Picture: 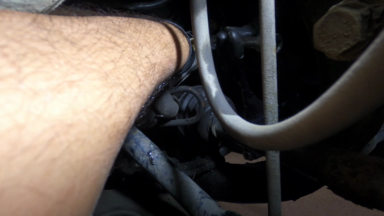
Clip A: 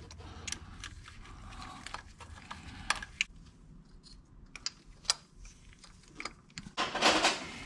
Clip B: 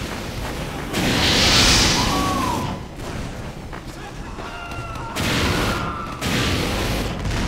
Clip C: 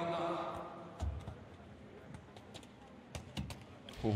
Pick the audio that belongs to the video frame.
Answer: A